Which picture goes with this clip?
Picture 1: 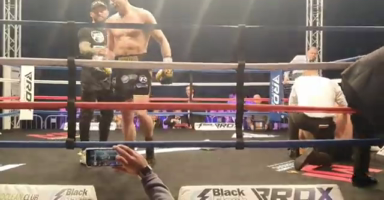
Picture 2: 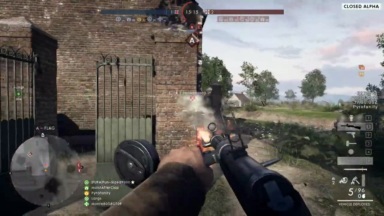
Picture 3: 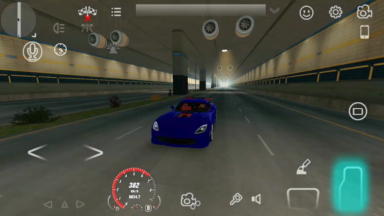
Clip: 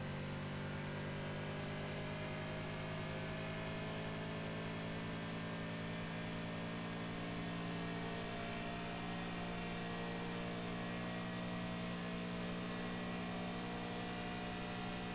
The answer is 3